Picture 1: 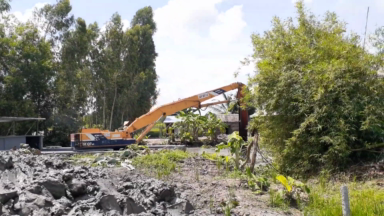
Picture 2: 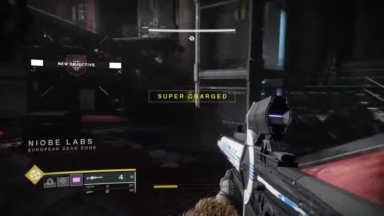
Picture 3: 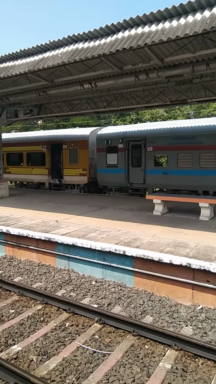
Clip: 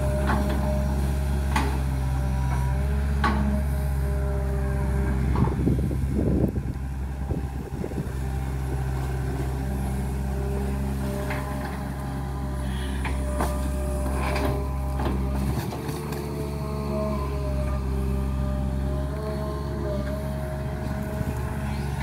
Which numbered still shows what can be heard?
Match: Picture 1